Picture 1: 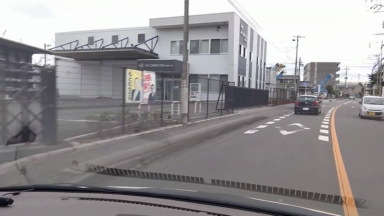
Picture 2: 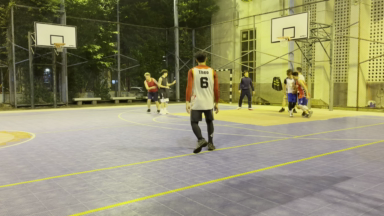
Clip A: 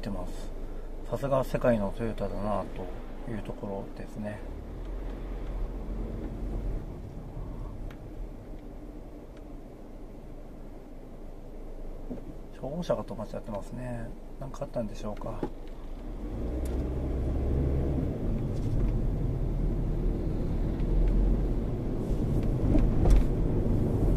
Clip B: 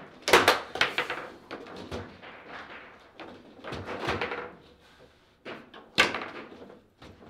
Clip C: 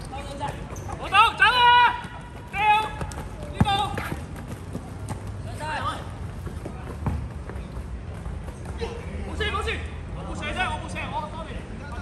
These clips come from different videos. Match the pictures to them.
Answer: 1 A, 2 C